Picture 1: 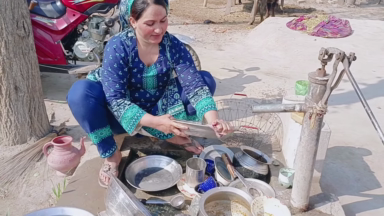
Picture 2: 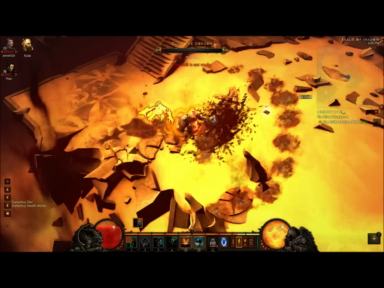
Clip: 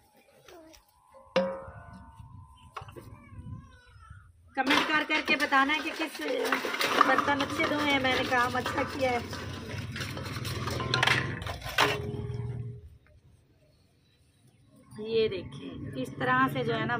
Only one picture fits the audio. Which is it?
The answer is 1